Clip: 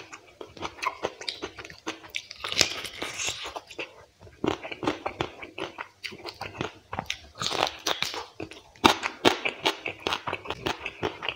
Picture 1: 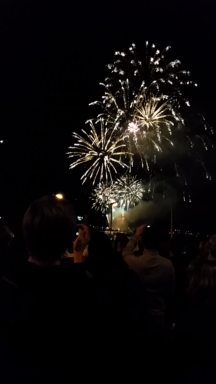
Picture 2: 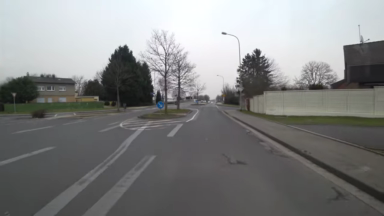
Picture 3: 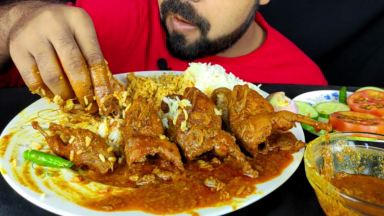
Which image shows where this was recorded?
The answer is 3